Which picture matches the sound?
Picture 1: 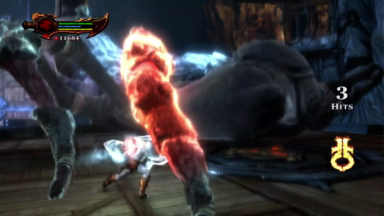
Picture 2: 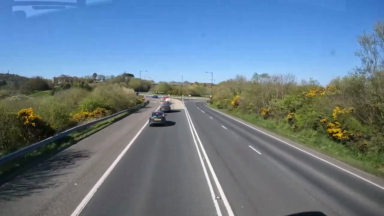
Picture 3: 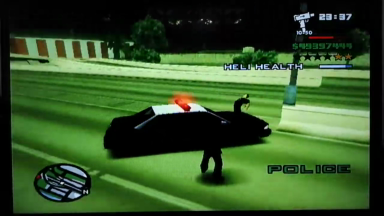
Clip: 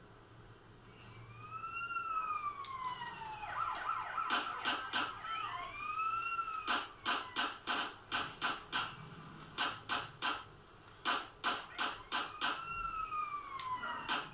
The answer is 3